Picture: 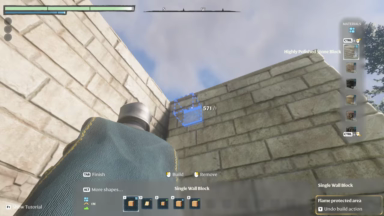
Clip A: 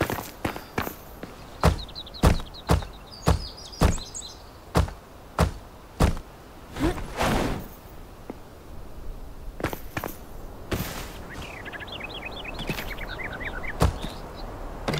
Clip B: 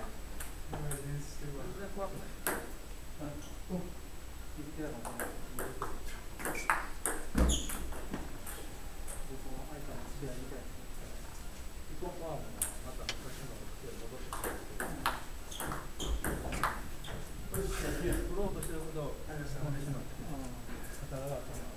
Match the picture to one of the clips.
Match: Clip A